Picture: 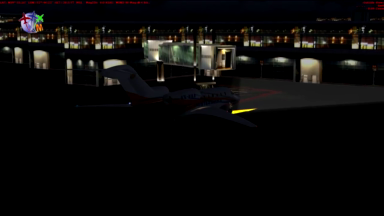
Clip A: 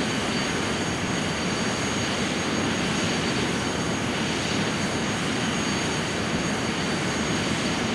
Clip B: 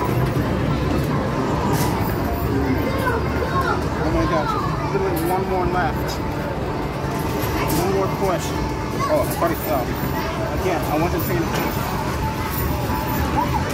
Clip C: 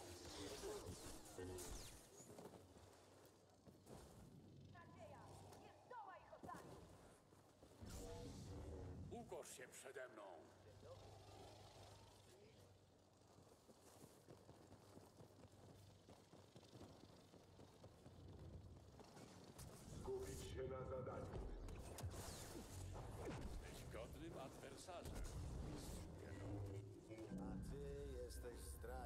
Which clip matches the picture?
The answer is A